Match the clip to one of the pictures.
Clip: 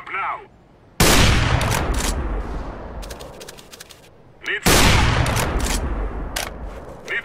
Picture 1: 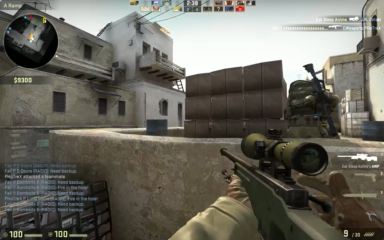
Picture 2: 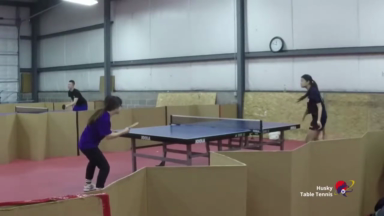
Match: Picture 1